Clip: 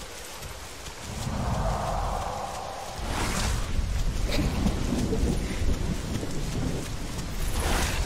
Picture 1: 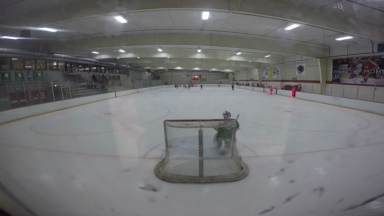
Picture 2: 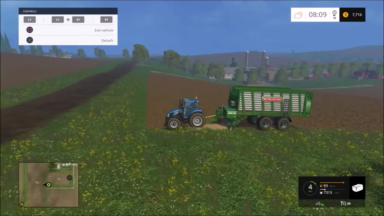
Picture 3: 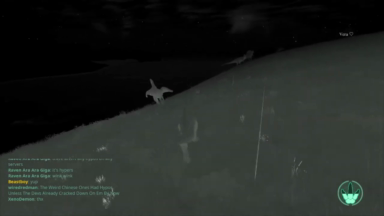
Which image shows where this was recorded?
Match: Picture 3